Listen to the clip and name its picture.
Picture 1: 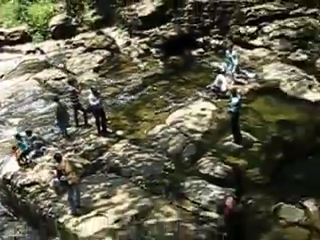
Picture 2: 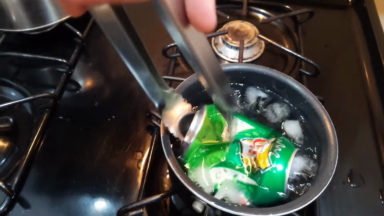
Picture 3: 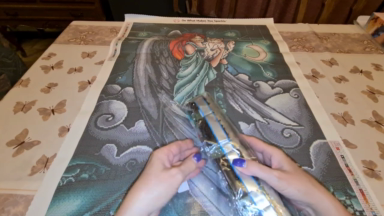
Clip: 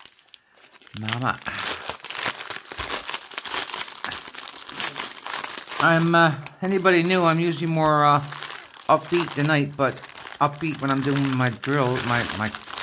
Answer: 3